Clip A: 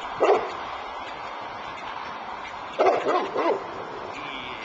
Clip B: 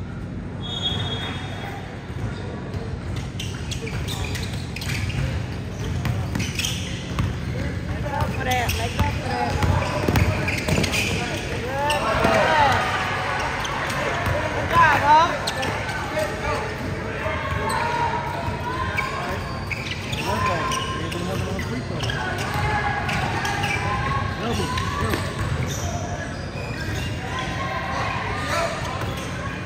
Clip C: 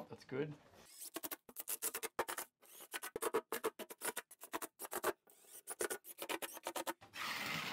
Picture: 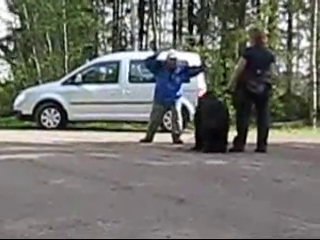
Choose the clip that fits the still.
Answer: A